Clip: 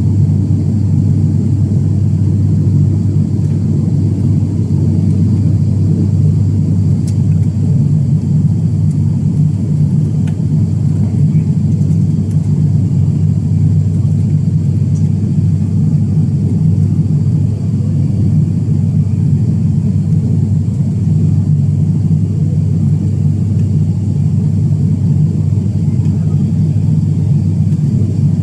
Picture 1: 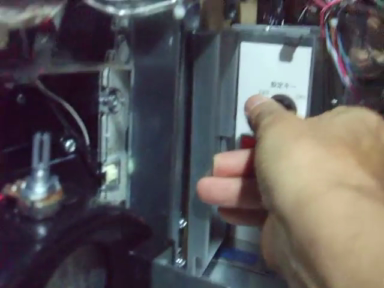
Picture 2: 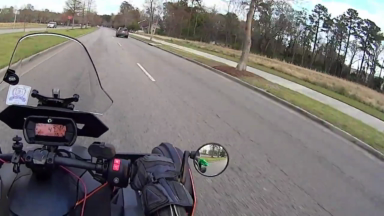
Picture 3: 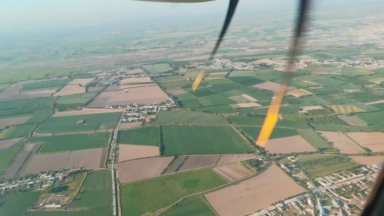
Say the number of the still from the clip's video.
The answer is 3